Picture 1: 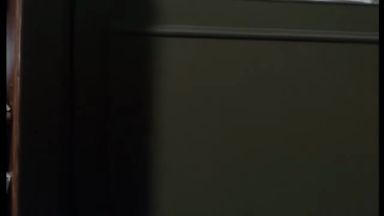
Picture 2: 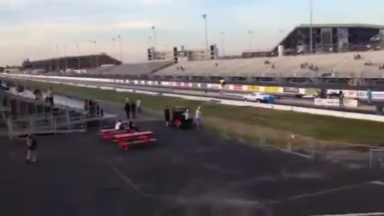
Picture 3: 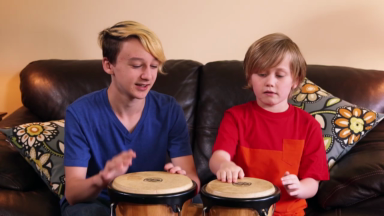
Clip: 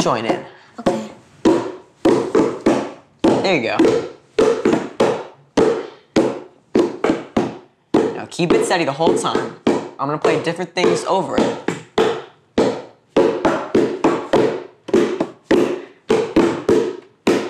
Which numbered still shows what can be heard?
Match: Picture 3